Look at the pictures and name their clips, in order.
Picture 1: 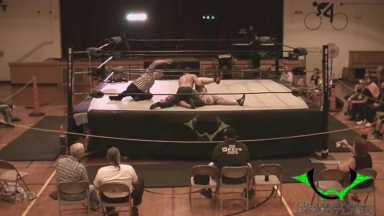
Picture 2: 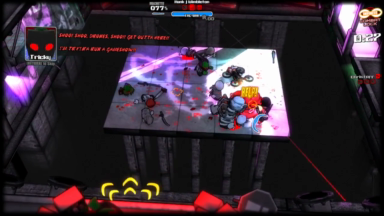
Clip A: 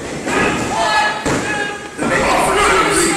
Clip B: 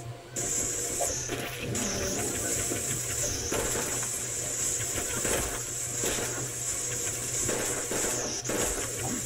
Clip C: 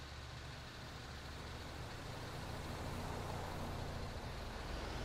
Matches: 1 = A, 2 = B